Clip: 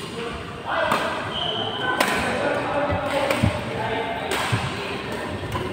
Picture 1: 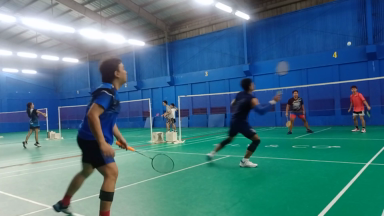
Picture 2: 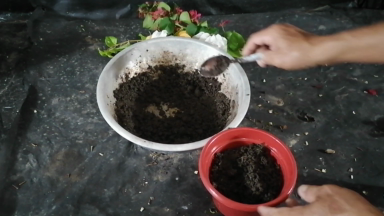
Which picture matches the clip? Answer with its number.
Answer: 1